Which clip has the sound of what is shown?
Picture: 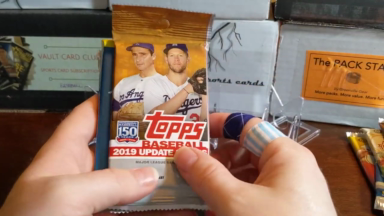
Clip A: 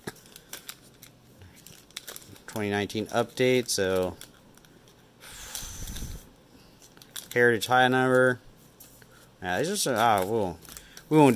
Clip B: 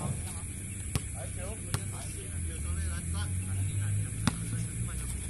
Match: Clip A